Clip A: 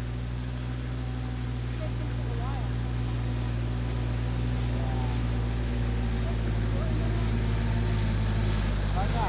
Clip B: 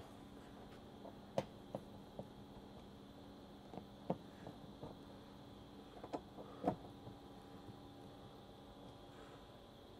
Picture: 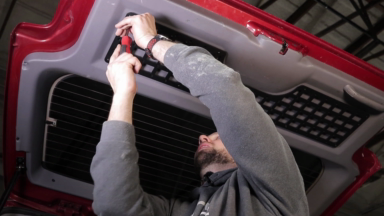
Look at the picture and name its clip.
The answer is B